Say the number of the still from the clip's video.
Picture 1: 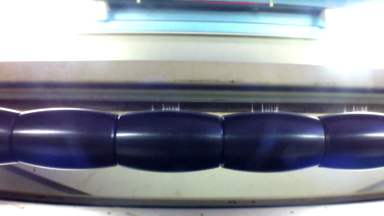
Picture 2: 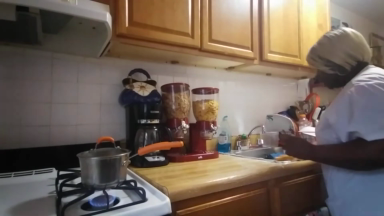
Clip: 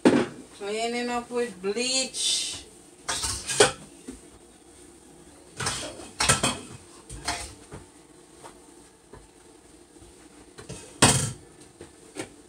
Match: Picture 2